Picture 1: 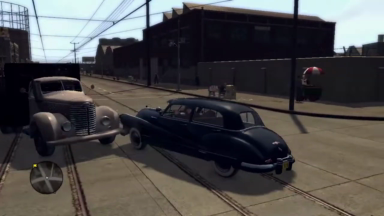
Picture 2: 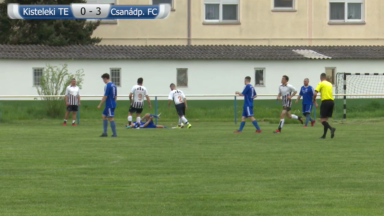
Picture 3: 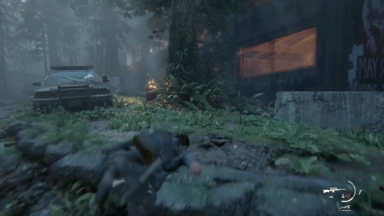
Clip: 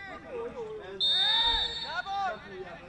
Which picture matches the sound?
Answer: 2